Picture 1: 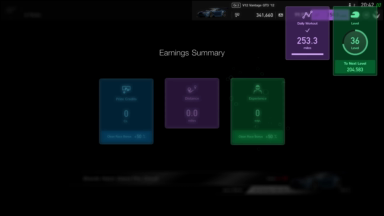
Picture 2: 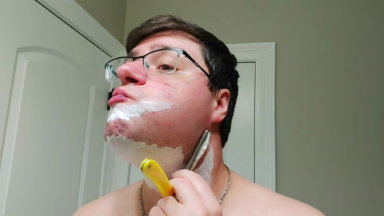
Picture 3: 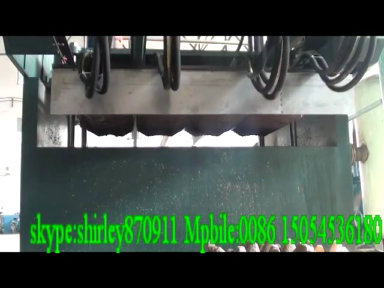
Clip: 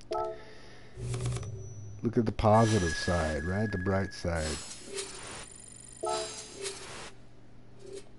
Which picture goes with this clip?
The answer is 1